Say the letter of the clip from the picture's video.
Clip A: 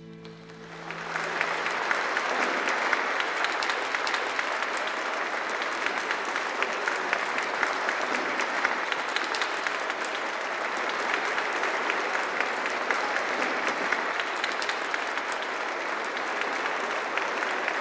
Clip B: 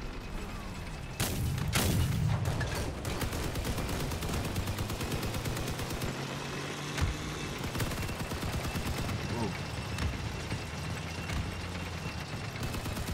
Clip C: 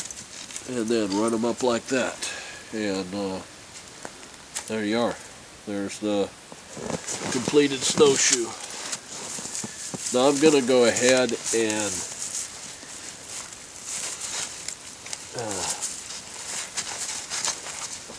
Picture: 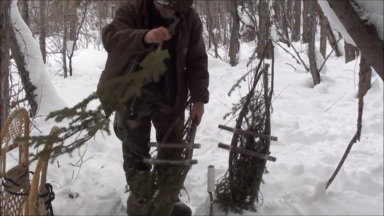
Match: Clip C